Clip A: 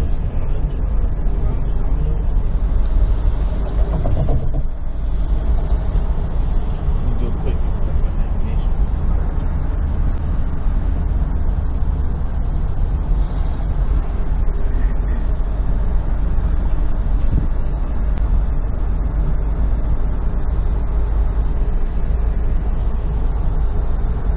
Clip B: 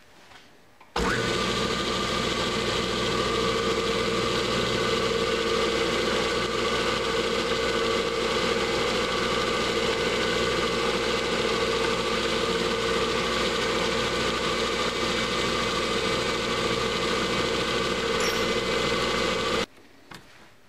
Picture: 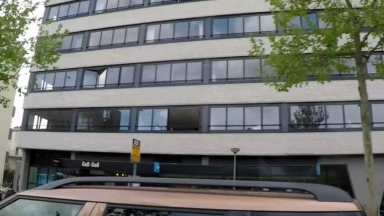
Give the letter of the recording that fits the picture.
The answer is A